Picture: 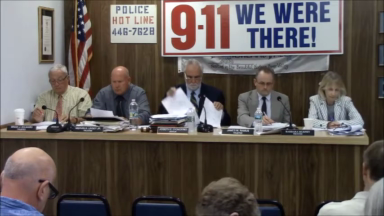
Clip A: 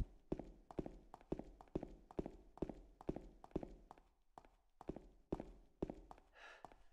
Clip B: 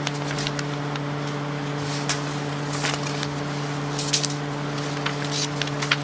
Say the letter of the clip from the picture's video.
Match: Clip B